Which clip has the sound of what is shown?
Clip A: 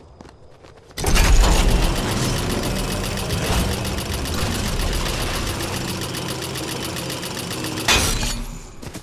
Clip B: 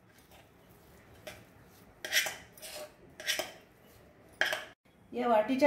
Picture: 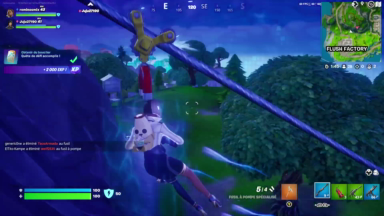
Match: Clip A